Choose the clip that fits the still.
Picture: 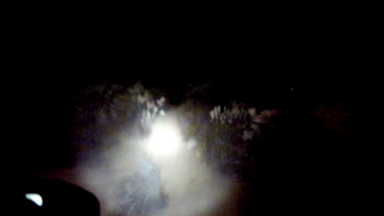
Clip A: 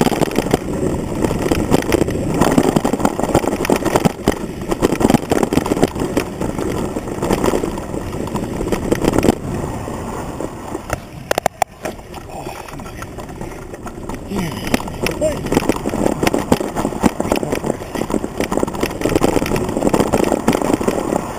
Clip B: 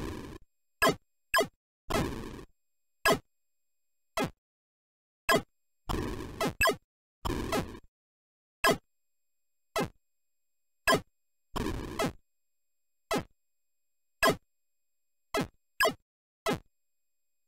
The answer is A